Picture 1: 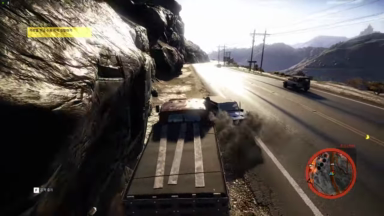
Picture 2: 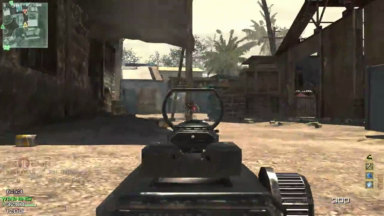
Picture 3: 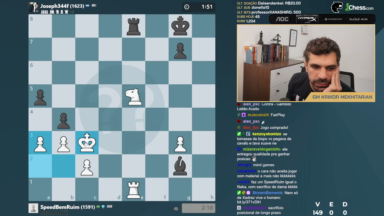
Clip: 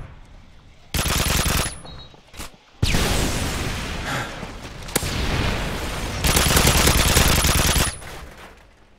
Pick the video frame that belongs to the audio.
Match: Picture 2